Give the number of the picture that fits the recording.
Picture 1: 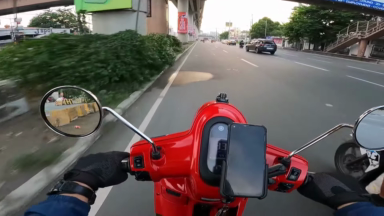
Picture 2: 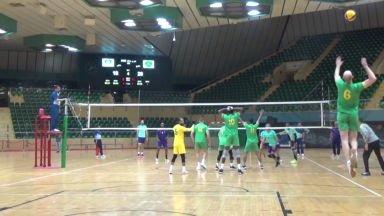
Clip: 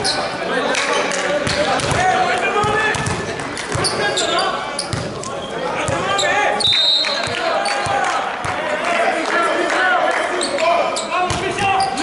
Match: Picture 2